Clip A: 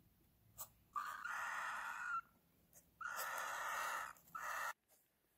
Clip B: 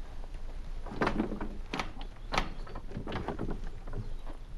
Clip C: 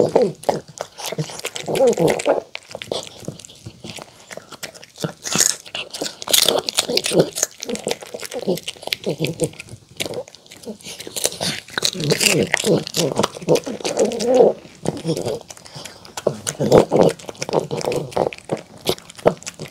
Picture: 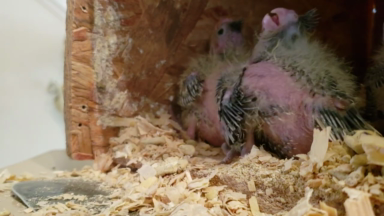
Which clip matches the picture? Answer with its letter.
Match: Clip A